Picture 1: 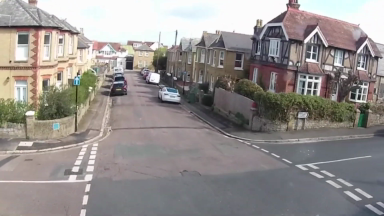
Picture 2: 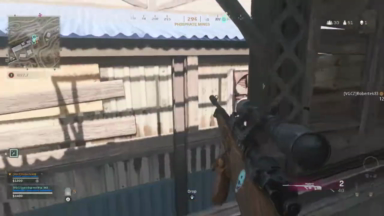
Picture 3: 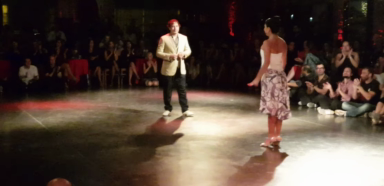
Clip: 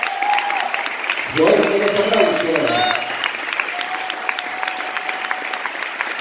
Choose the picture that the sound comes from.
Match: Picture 3